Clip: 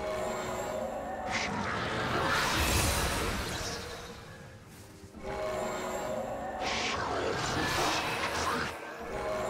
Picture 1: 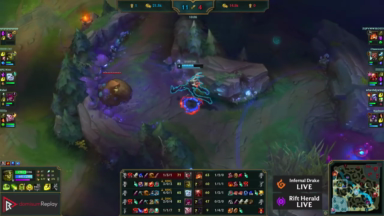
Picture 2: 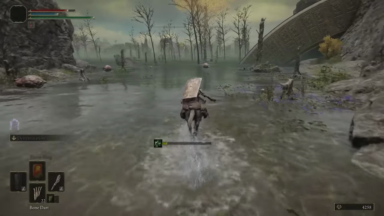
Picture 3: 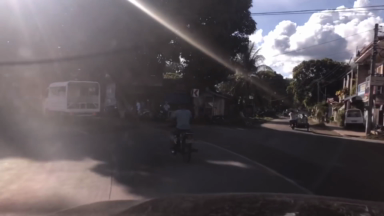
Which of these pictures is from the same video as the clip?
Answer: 1